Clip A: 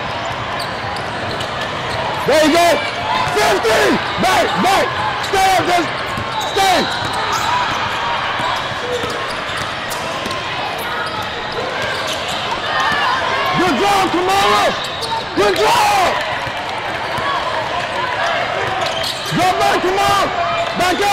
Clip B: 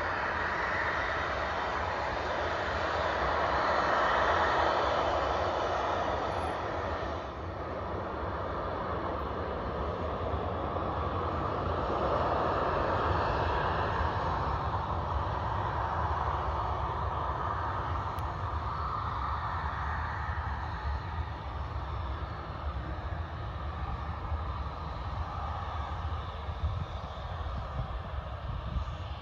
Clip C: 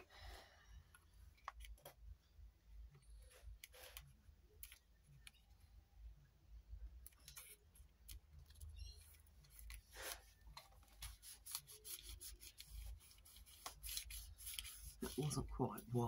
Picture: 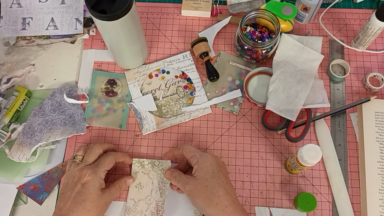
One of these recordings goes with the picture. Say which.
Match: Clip C